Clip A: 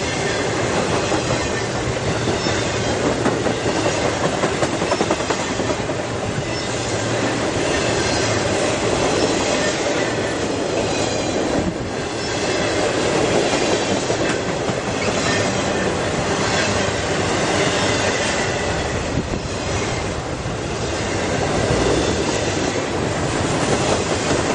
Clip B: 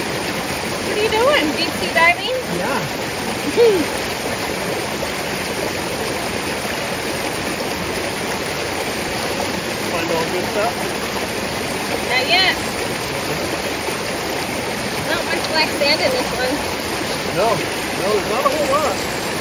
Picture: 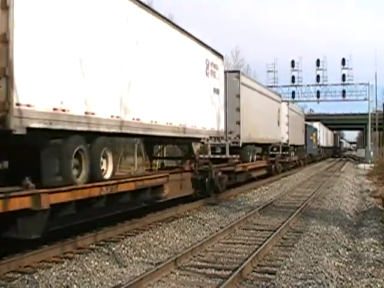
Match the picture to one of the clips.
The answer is A